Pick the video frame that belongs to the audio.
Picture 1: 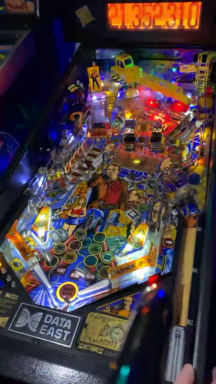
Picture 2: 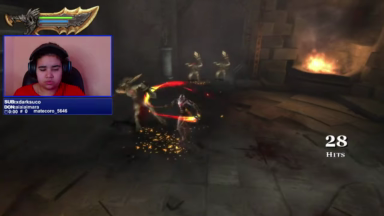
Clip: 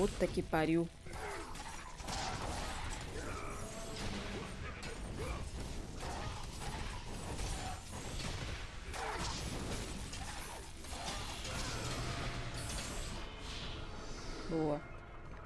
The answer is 2